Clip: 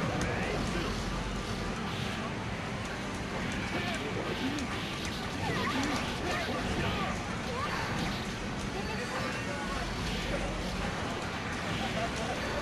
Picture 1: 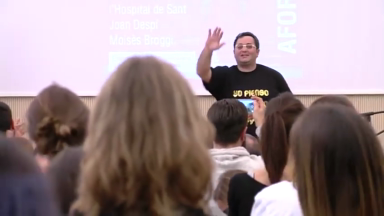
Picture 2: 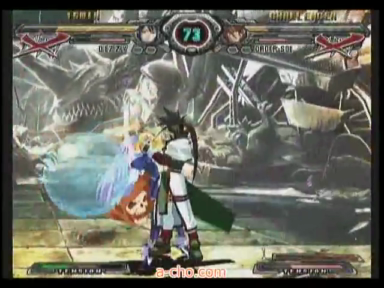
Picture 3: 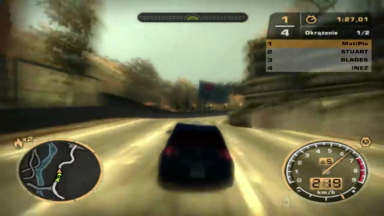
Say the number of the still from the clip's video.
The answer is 2